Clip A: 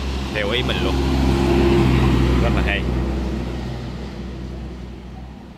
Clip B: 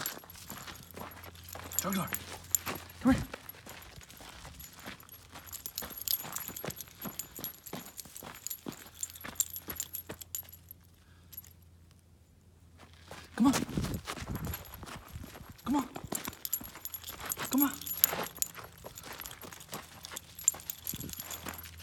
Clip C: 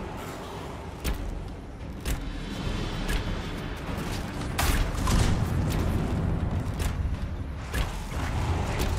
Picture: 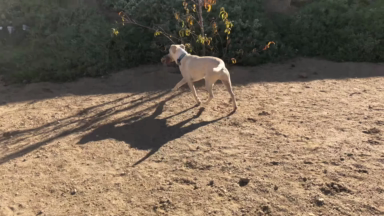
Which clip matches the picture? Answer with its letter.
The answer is B